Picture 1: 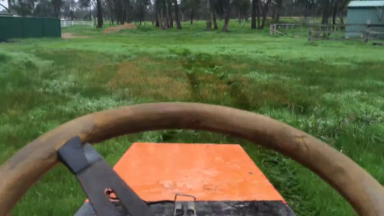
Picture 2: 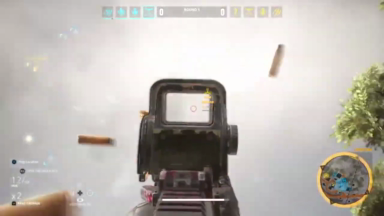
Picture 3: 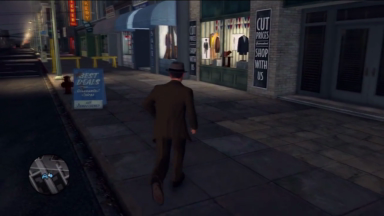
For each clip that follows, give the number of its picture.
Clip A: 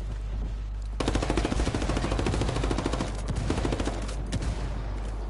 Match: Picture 2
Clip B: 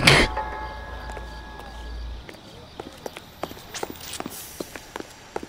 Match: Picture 3